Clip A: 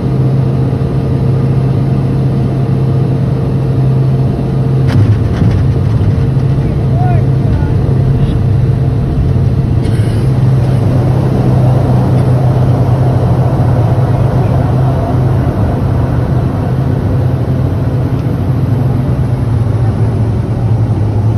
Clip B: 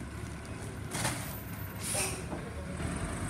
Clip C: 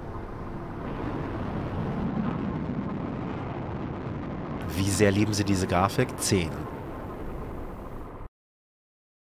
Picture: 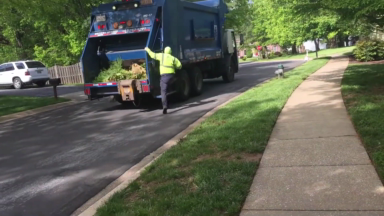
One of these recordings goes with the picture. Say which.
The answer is B